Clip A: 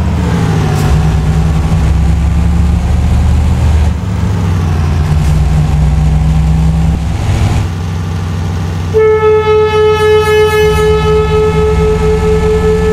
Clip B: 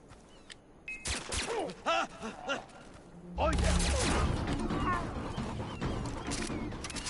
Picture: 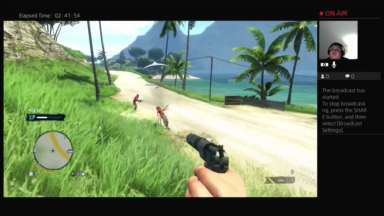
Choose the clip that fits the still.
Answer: B